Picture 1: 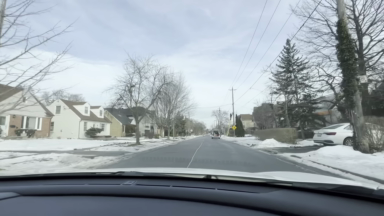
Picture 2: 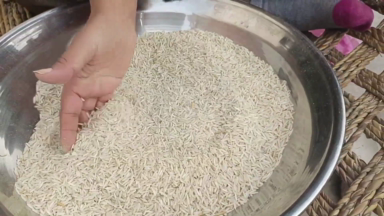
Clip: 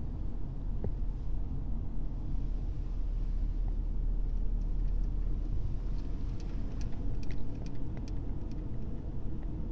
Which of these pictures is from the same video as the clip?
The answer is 1